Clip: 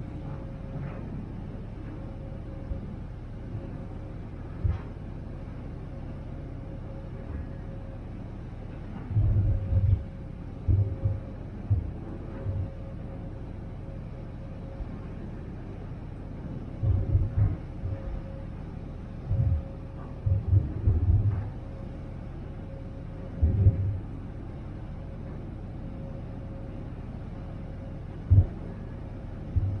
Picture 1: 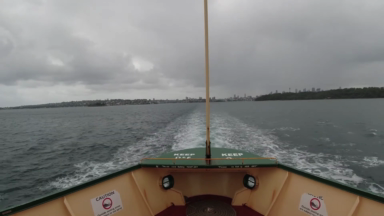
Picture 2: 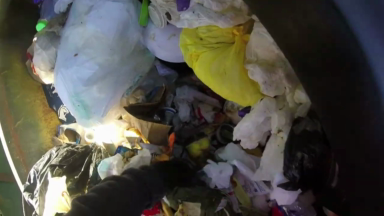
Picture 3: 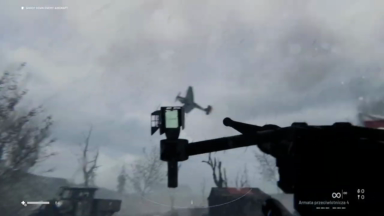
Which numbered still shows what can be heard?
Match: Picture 1